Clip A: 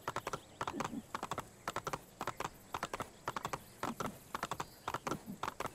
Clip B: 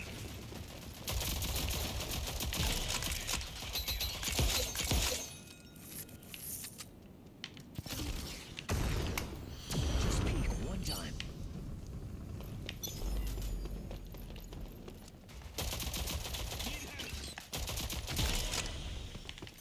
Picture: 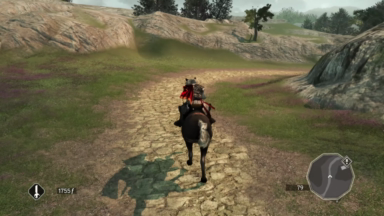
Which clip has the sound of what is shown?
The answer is A